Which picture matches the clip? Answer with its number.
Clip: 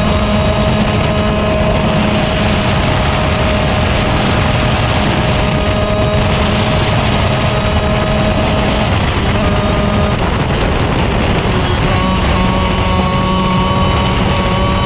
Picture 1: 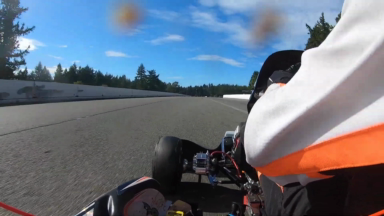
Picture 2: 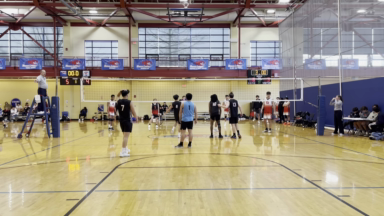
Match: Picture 1